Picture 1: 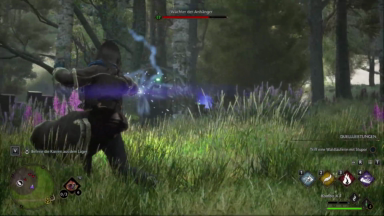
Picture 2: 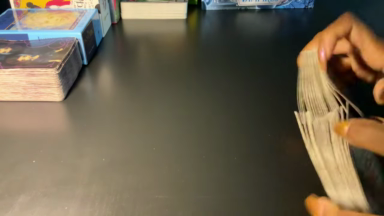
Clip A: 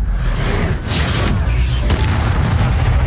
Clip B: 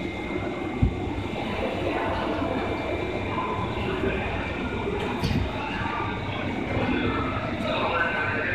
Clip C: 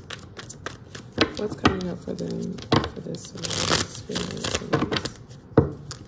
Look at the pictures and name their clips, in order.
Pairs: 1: A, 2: C